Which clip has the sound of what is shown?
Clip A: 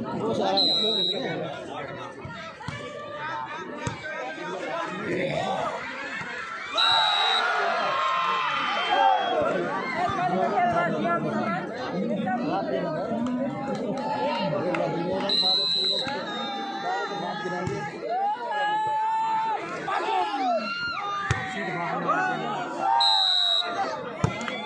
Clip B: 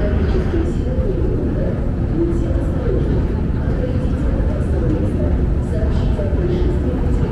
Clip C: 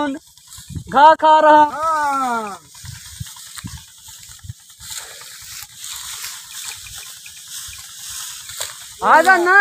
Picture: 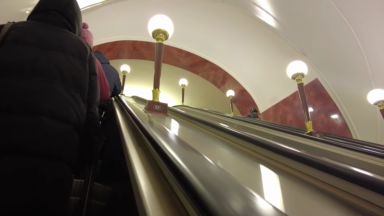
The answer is B